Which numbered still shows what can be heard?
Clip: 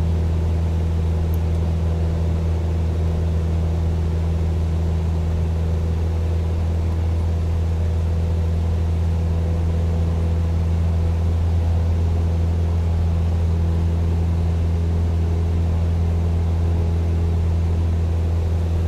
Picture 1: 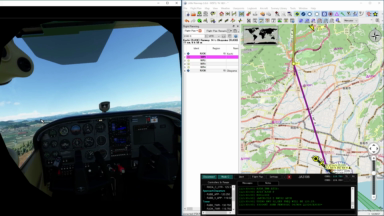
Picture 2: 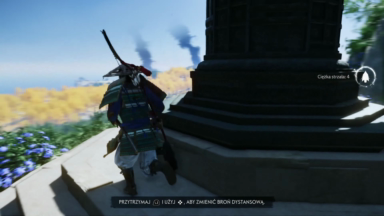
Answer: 1